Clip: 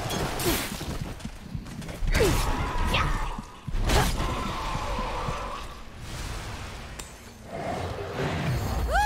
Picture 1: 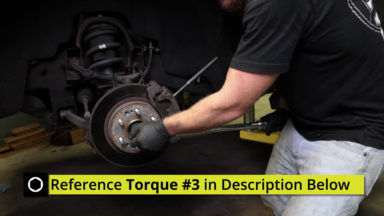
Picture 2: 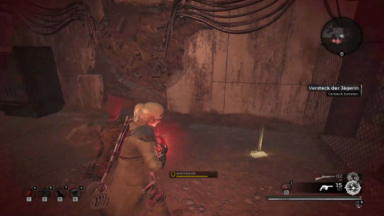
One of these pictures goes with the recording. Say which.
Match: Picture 2